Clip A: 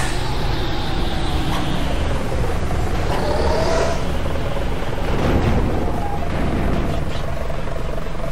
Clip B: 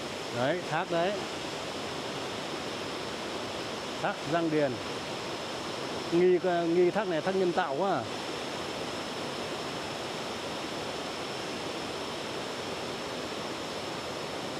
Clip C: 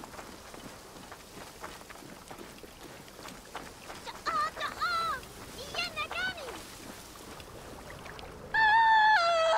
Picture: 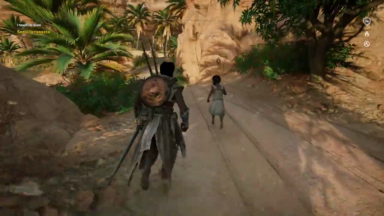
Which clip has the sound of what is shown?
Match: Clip C